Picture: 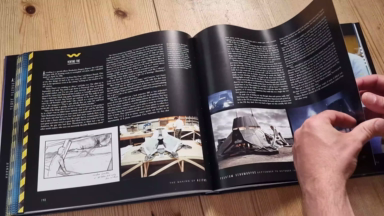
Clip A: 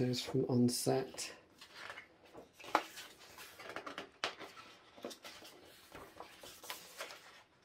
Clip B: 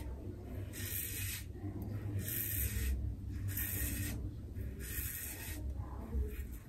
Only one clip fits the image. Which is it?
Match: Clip A